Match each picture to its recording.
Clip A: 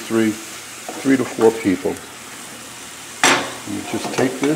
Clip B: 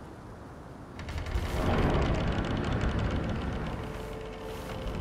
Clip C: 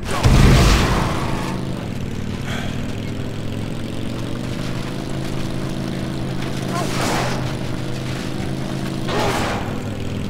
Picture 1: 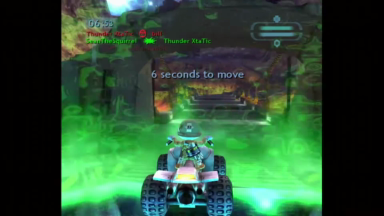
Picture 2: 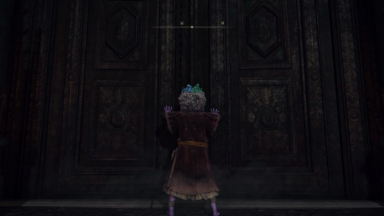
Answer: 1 C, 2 B